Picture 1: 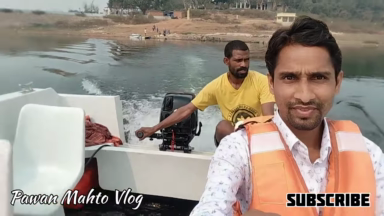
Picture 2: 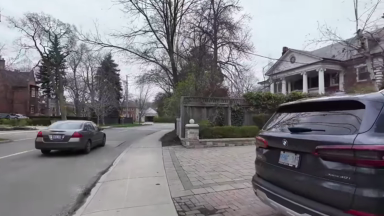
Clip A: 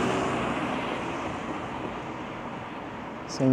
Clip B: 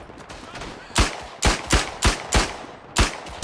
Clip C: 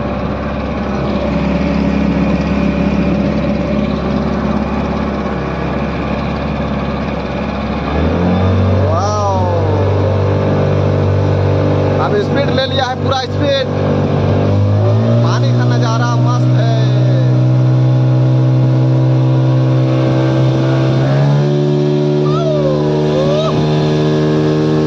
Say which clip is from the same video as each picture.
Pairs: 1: C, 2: A